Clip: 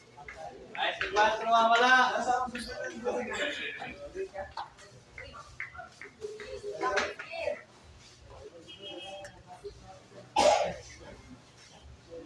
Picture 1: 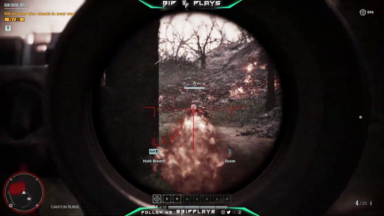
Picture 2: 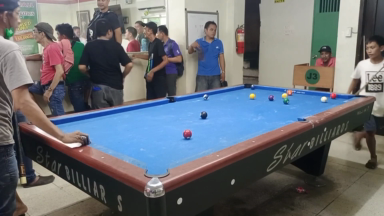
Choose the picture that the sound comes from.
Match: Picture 2